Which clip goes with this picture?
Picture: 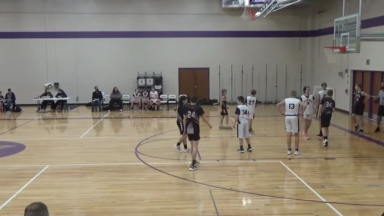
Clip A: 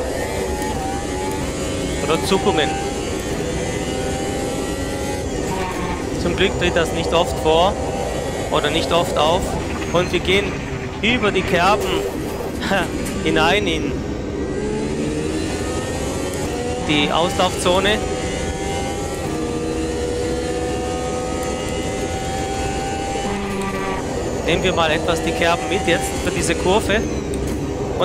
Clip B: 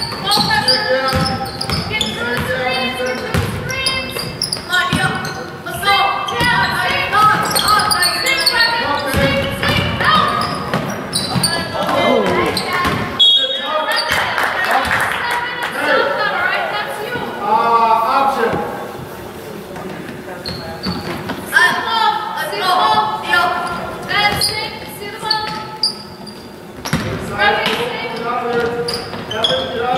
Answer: B